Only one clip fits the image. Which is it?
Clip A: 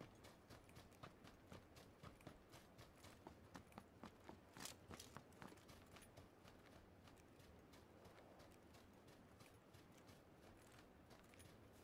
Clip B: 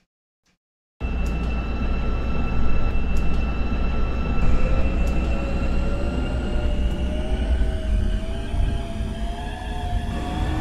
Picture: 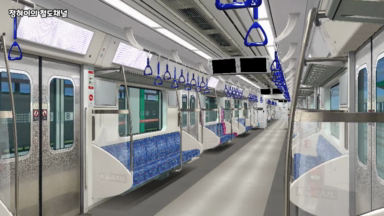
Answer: B